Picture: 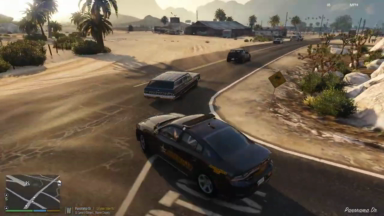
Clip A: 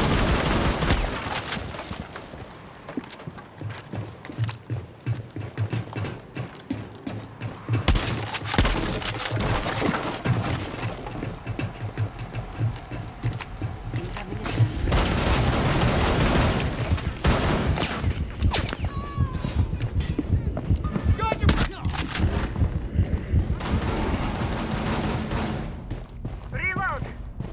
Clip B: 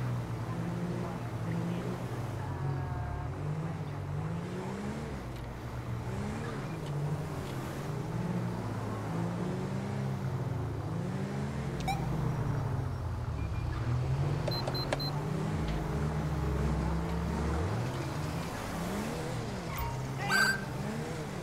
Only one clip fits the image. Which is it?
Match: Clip B